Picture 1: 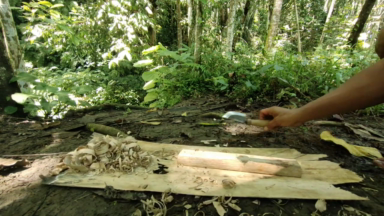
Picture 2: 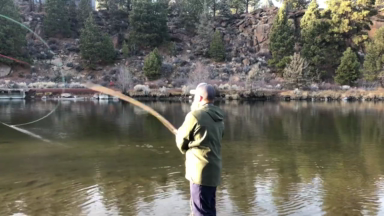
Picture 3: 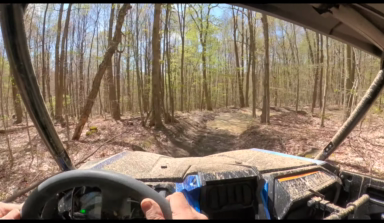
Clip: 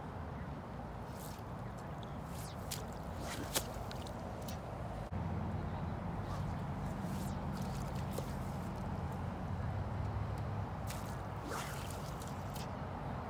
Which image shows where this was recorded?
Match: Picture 2